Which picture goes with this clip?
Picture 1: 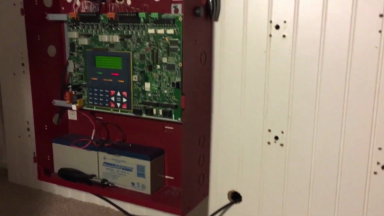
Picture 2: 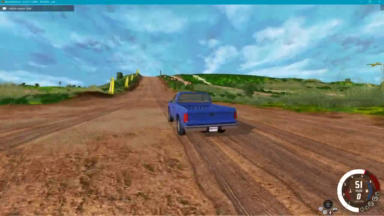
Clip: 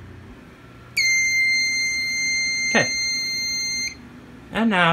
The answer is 1